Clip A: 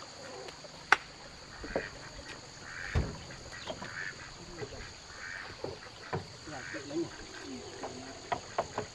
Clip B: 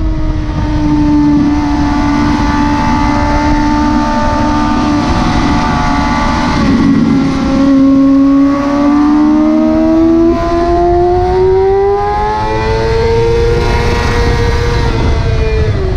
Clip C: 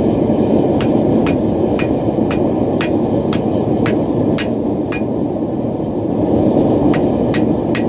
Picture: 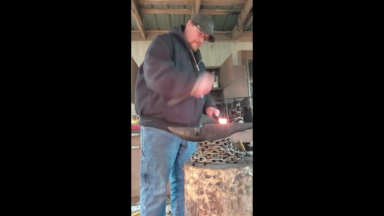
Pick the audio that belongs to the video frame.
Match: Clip C